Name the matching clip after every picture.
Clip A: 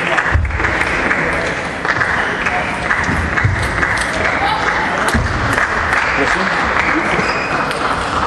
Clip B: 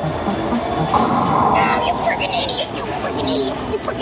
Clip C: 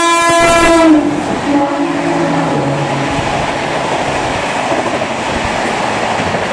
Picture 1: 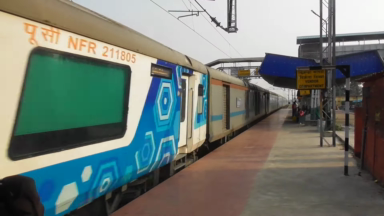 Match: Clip C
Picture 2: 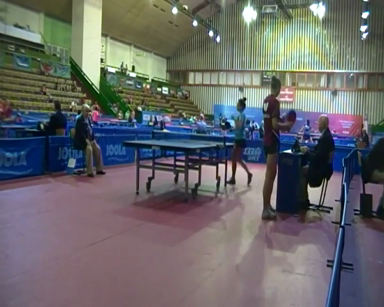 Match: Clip A